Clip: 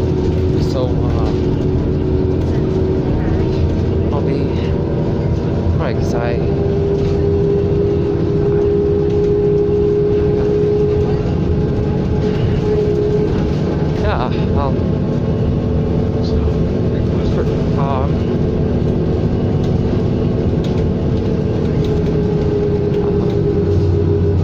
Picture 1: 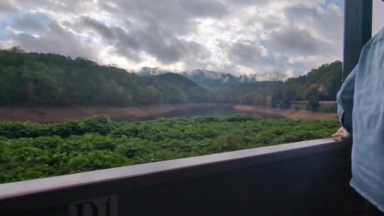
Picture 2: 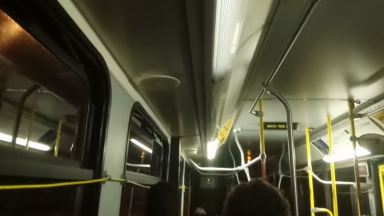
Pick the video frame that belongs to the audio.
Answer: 2